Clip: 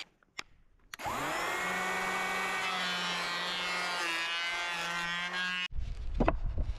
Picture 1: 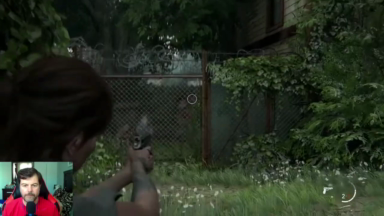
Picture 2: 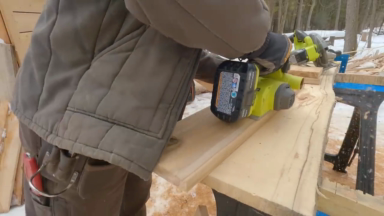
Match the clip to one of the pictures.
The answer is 2